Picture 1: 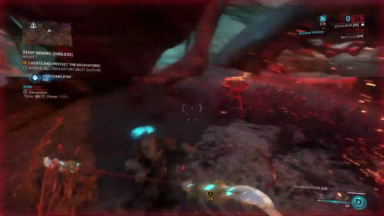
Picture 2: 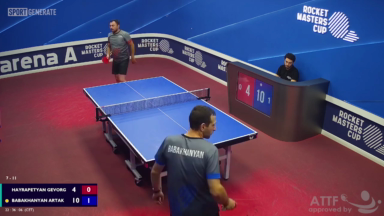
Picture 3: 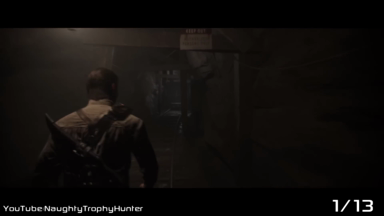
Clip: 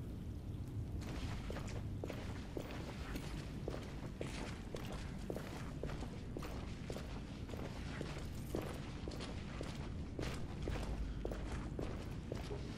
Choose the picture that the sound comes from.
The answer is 3